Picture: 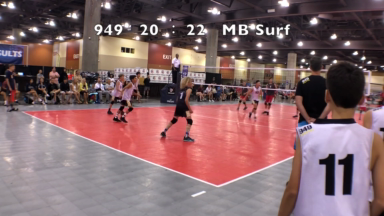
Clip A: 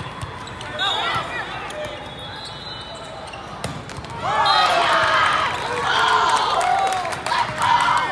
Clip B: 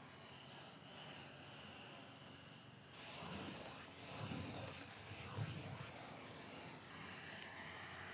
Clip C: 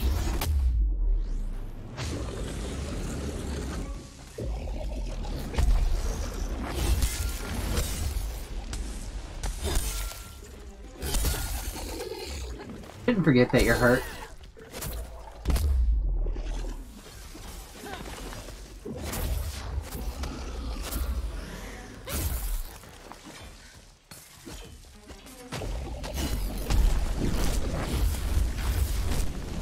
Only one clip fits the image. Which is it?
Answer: A